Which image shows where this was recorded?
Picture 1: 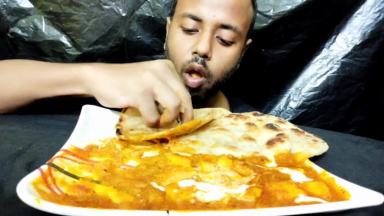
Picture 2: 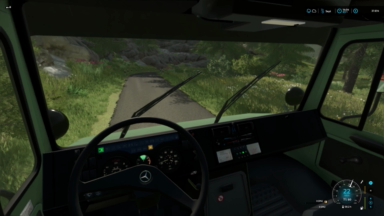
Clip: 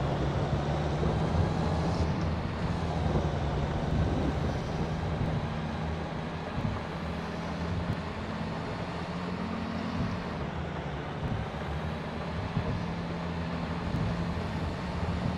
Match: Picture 2